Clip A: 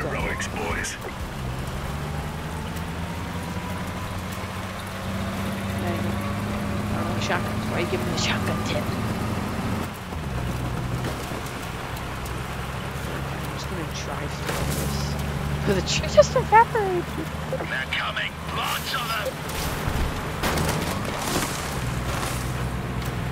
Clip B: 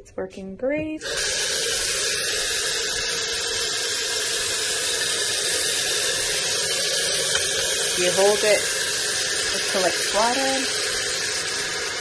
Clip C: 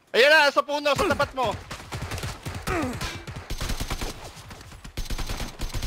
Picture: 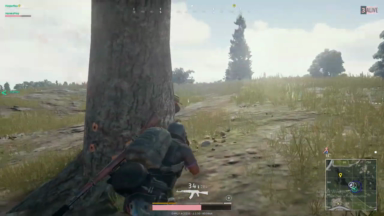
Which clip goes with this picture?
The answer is C